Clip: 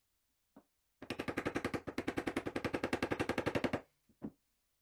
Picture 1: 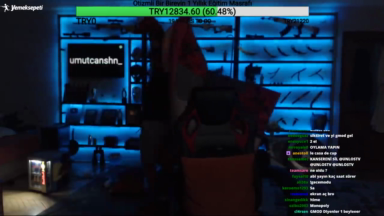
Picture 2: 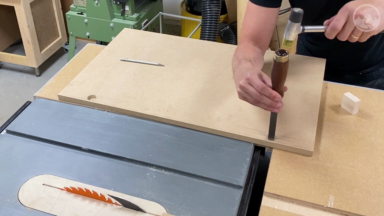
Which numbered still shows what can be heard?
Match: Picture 2